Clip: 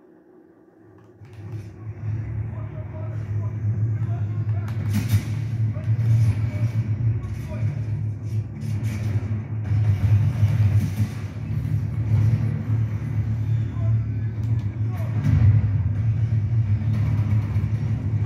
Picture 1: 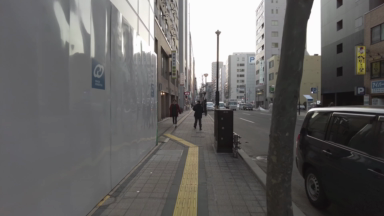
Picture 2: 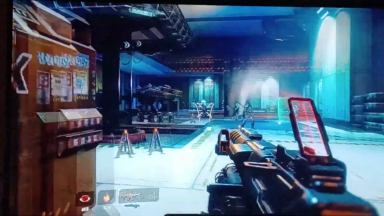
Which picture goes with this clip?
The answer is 2